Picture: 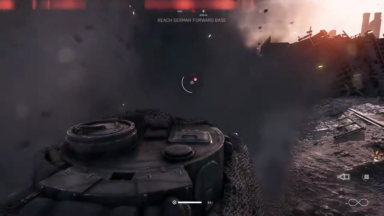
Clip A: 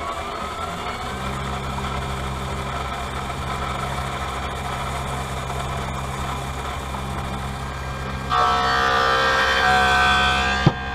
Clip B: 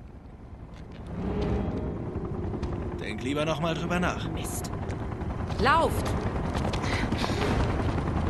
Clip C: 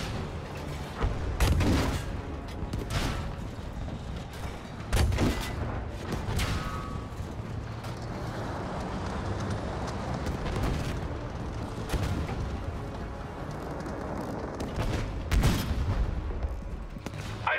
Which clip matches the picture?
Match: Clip C